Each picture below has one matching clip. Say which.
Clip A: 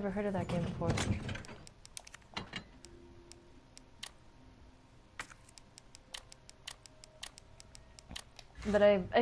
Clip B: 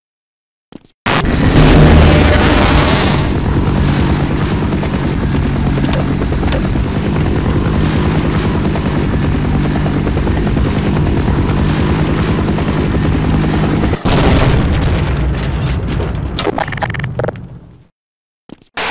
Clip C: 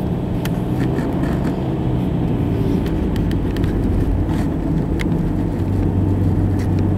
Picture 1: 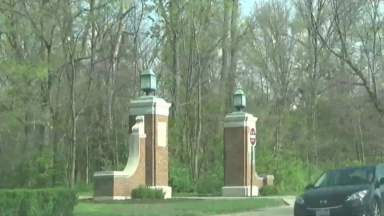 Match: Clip C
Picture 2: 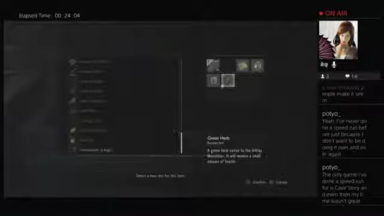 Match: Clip A